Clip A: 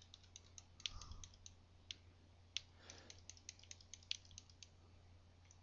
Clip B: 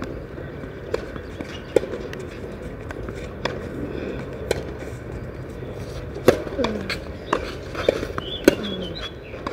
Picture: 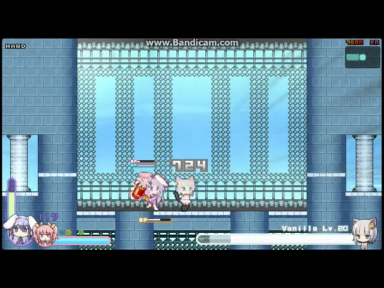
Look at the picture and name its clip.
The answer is A